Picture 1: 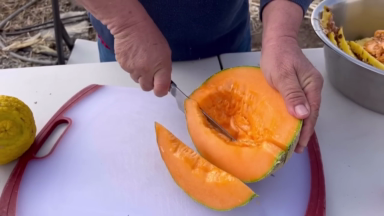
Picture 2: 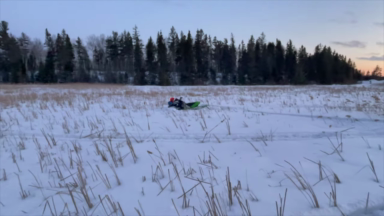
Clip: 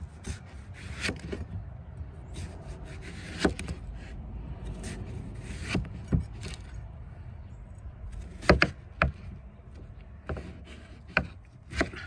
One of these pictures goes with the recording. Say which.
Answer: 1